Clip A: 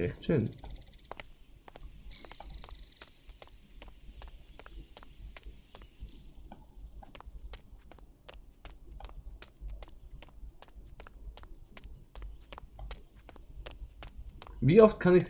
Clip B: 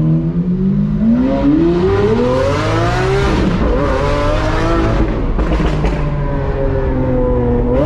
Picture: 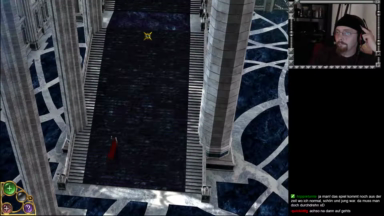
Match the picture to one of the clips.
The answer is A